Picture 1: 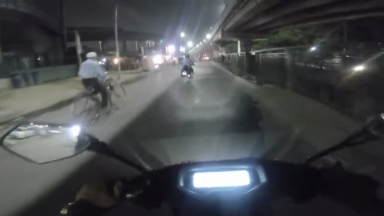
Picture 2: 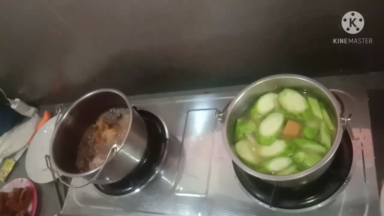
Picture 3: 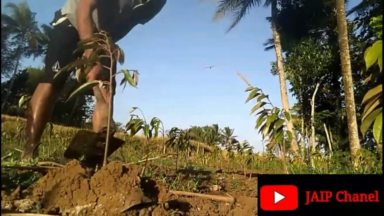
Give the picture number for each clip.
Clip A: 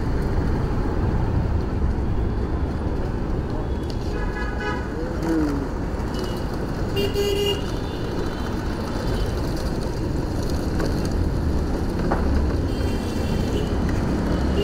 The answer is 1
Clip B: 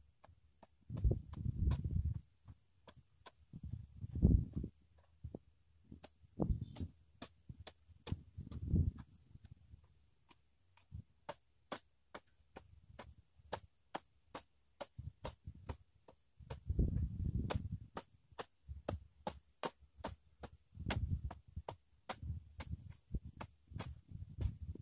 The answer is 3